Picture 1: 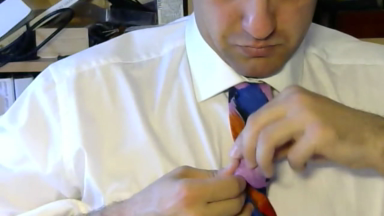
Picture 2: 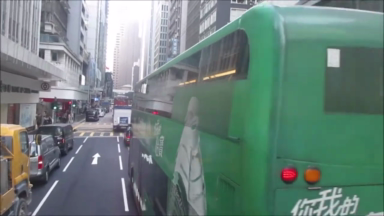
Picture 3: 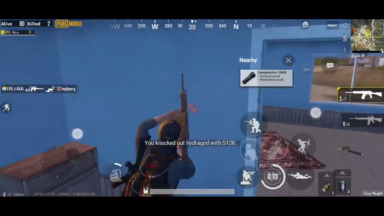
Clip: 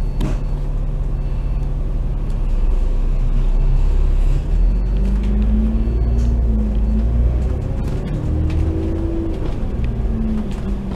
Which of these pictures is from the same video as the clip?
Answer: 2